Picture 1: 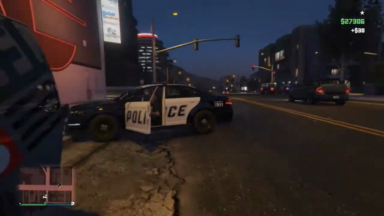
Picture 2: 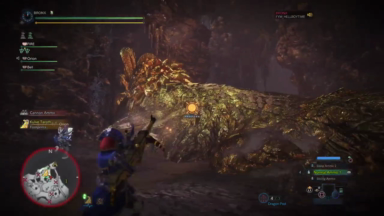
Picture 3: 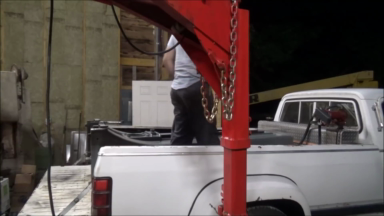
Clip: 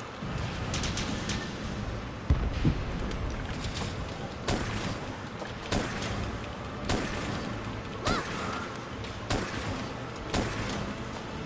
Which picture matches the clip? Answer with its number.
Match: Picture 2